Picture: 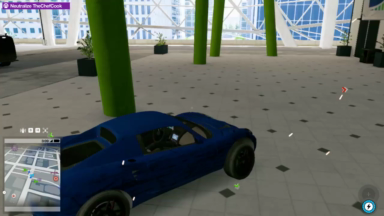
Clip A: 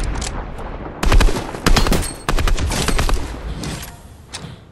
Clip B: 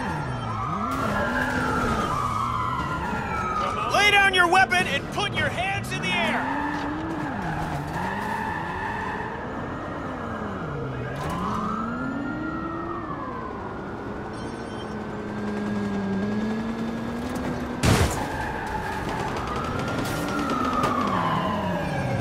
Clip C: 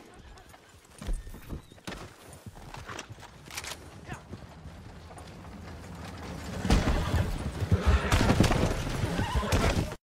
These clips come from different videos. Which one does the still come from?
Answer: B